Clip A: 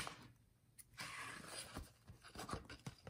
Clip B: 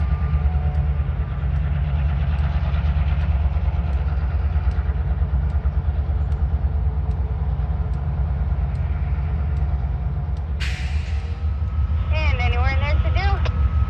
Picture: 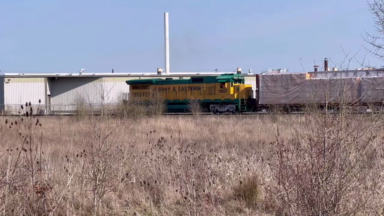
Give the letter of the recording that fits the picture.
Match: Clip B